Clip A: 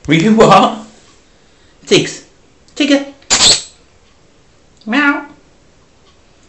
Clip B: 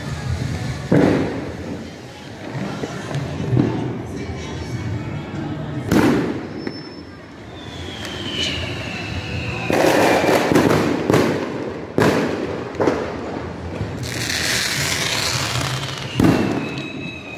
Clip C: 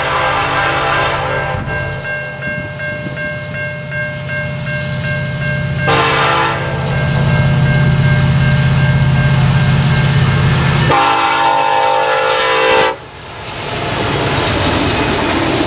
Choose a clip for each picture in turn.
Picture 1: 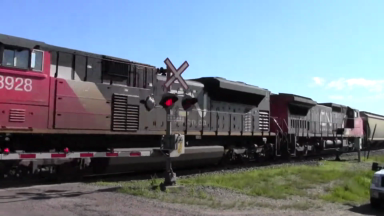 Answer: C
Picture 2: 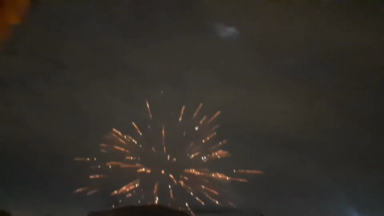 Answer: B